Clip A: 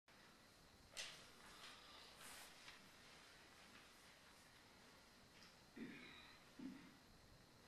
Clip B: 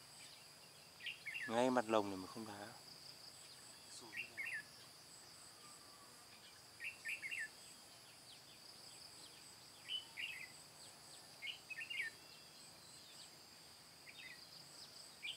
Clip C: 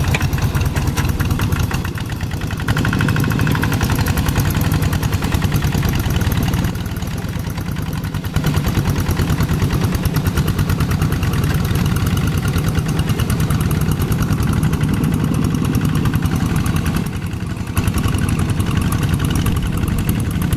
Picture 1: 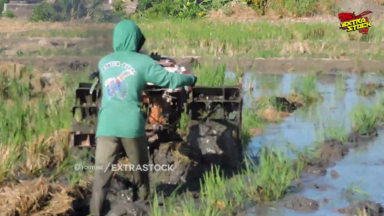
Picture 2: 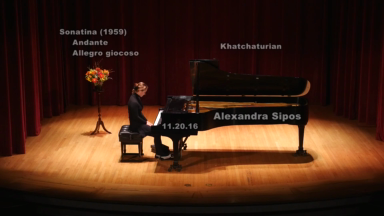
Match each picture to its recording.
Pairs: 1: C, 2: A